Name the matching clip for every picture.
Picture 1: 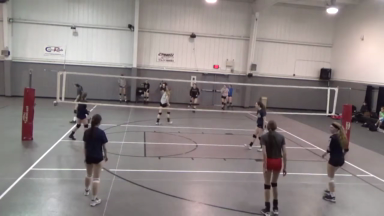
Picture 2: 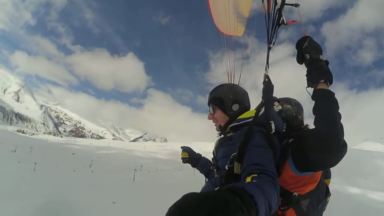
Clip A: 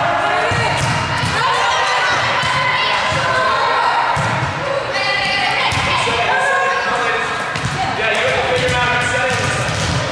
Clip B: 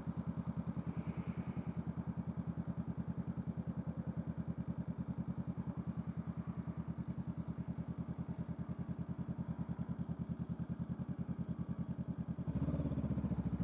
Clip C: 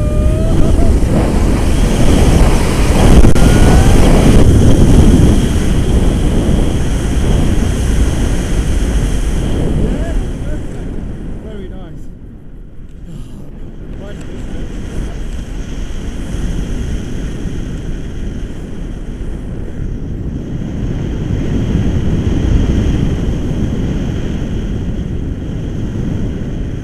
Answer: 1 A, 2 C